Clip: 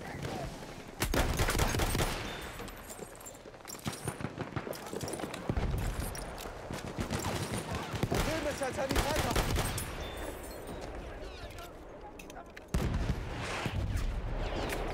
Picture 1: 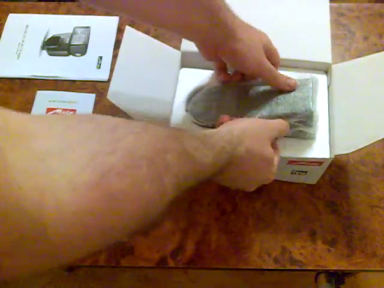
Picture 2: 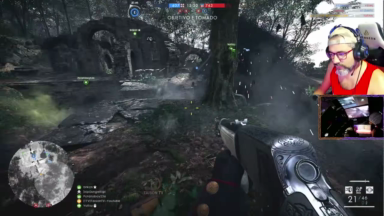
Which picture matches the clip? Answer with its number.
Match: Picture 2